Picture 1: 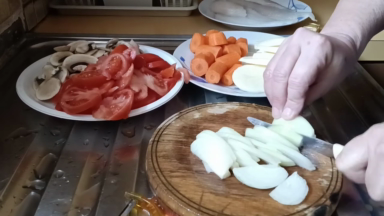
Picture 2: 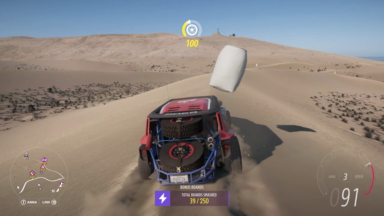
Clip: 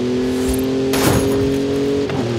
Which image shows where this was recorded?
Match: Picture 2